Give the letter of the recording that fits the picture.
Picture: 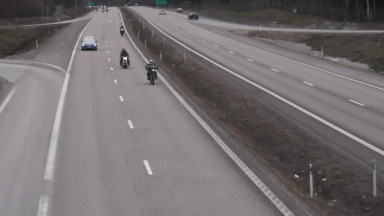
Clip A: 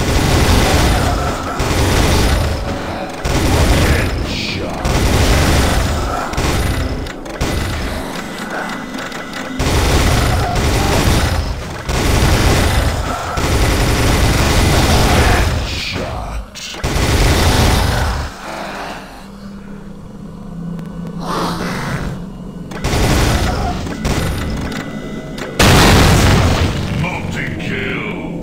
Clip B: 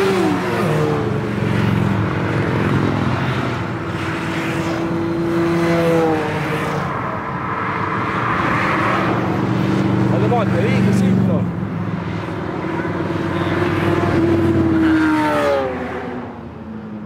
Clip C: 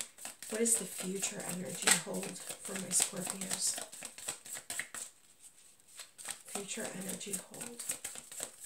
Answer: B